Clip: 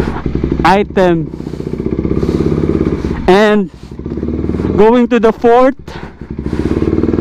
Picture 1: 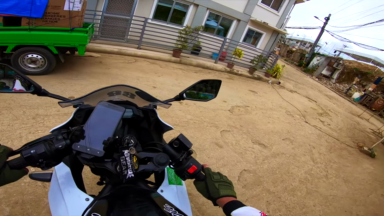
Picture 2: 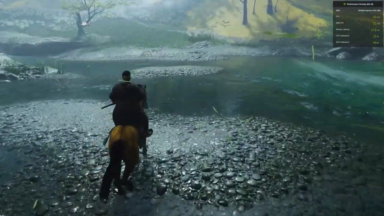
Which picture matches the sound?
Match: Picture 1